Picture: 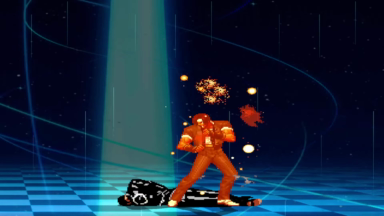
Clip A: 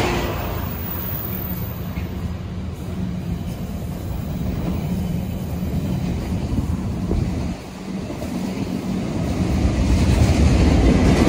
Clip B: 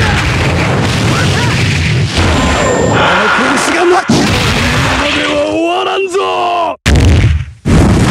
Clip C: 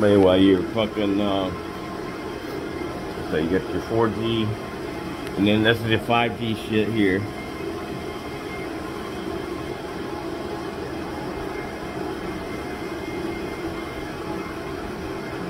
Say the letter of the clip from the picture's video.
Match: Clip B